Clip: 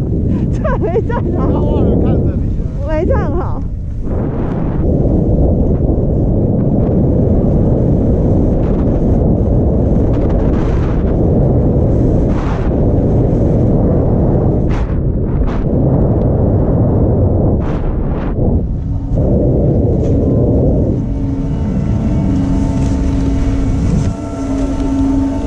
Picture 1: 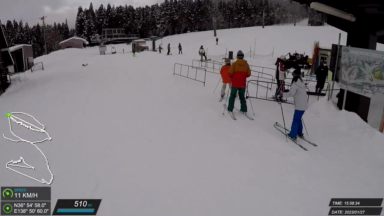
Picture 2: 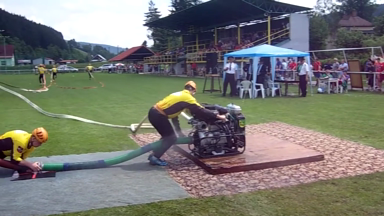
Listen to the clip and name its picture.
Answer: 1